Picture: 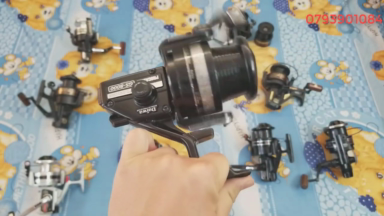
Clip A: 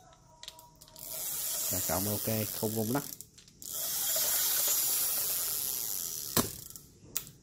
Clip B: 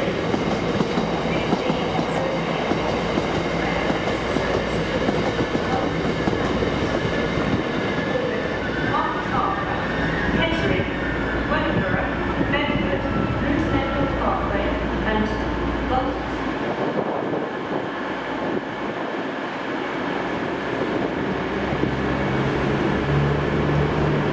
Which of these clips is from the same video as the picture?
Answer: A